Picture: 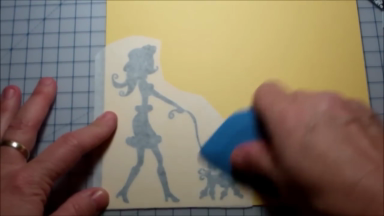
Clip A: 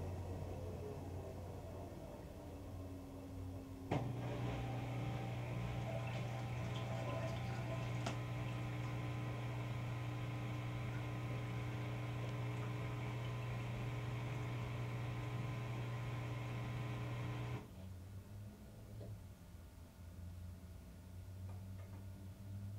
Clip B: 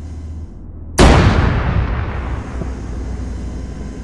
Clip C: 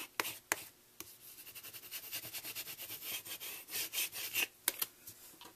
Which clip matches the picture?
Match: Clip C